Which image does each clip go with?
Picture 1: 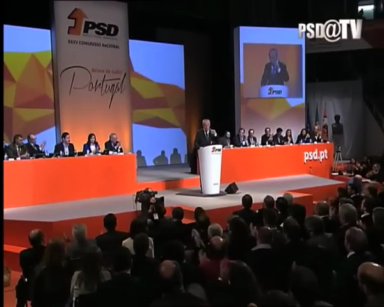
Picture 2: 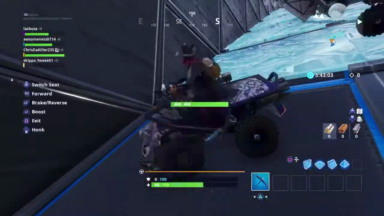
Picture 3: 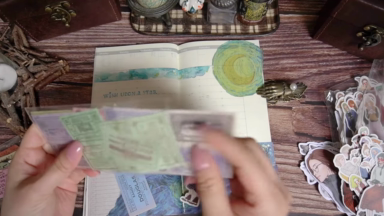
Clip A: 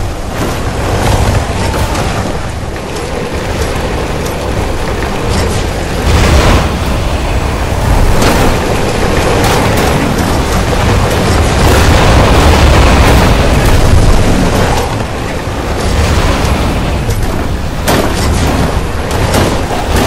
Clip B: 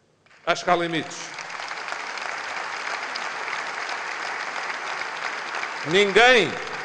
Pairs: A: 2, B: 1